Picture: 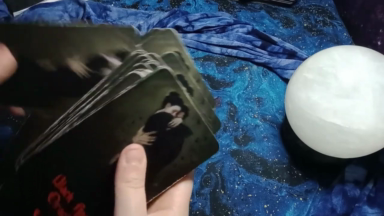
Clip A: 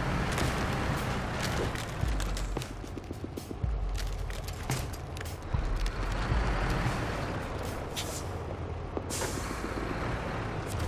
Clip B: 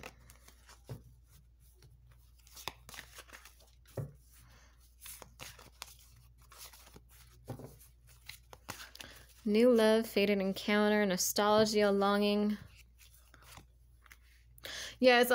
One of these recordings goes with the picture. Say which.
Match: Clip B